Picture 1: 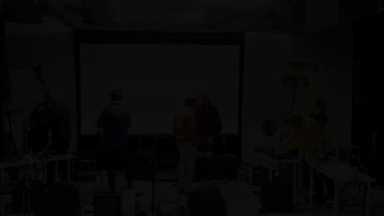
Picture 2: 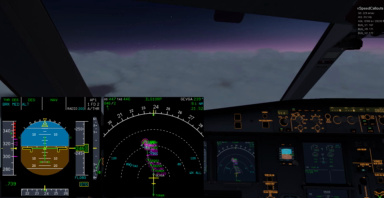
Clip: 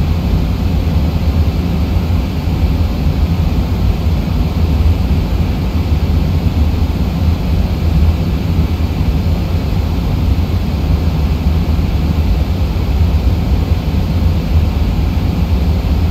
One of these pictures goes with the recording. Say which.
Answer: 2